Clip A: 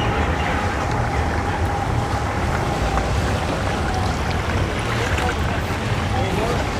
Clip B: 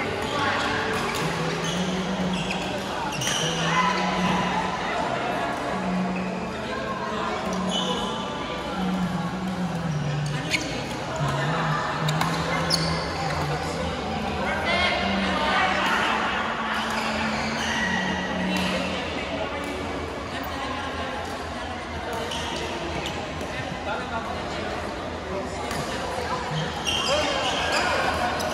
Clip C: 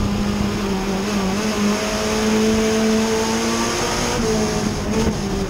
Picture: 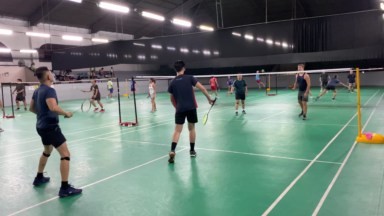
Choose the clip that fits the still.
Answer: B